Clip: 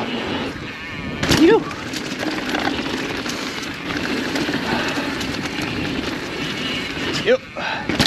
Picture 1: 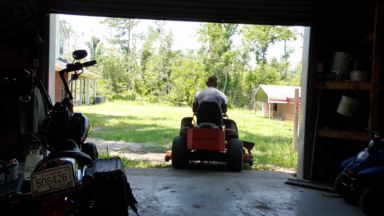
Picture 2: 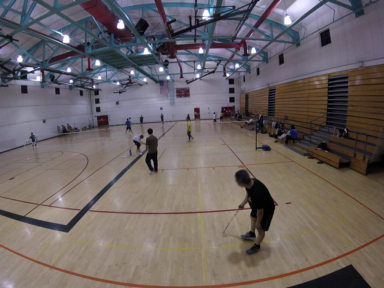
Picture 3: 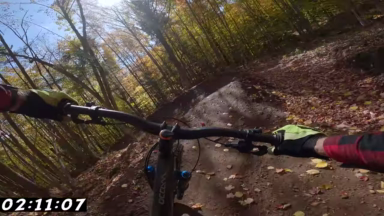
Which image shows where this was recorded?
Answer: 3